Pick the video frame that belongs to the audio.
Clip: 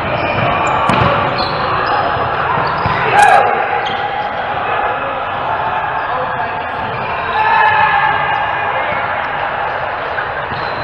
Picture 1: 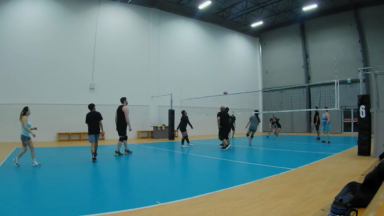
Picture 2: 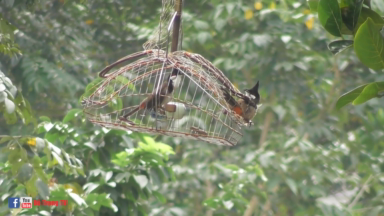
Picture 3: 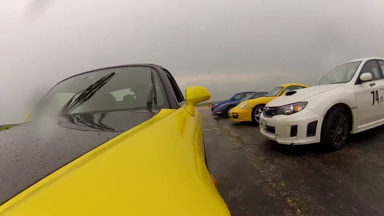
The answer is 1